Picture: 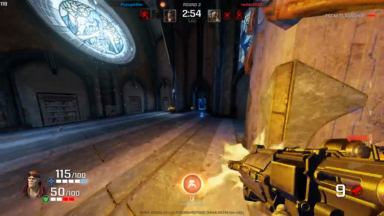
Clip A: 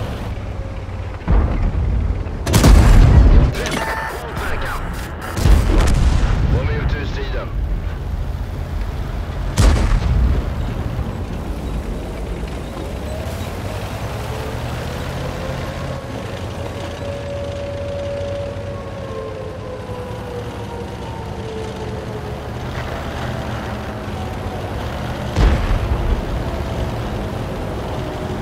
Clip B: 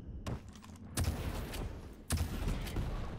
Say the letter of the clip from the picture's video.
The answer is B